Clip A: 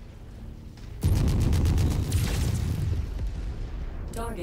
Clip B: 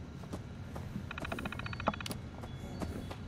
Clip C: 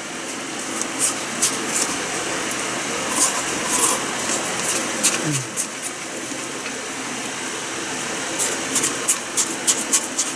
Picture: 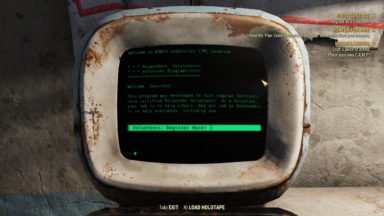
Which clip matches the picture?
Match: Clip B